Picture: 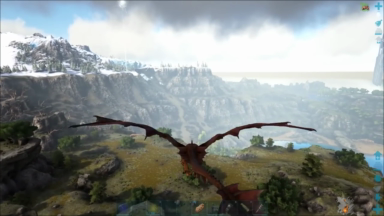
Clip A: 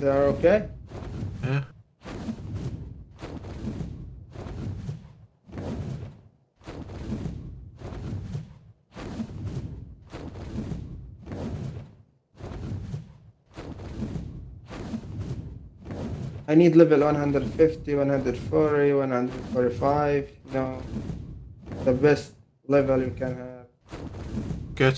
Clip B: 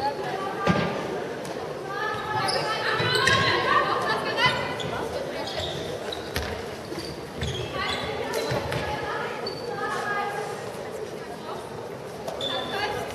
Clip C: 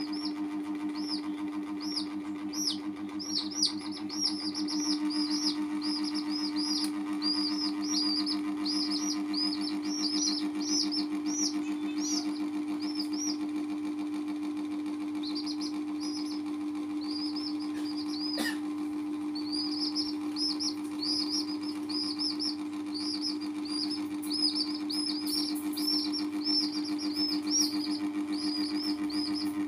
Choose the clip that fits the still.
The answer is A